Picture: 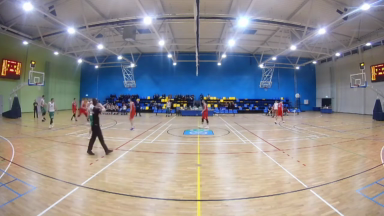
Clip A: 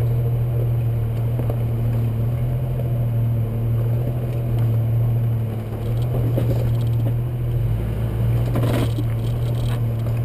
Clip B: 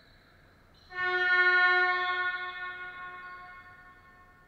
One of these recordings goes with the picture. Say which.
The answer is B